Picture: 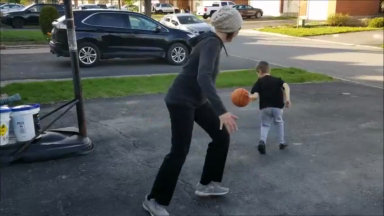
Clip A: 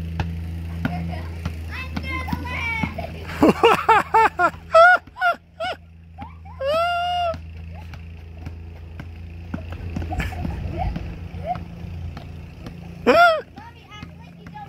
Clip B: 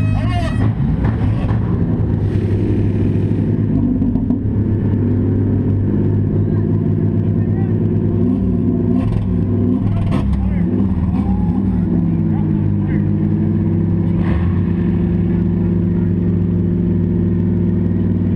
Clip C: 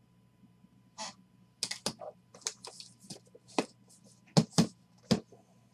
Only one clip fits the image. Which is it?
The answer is A